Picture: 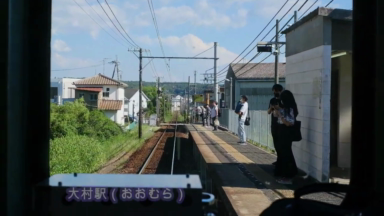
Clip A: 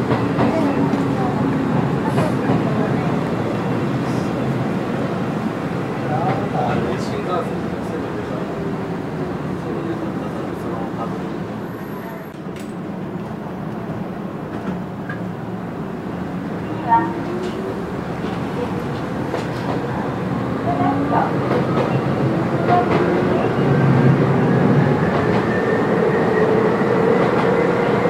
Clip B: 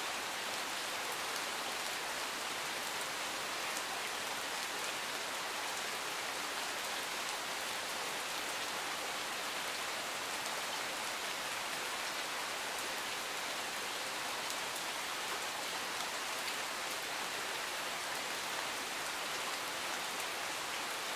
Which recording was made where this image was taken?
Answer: A